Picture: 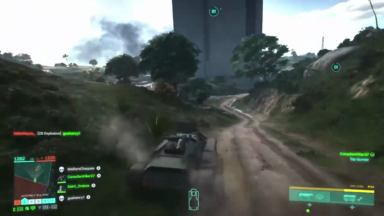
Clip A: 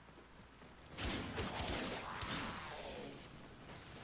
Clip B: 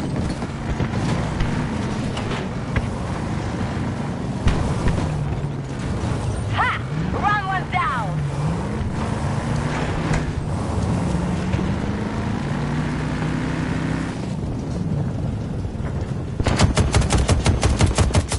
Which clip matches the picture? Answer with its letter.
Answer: B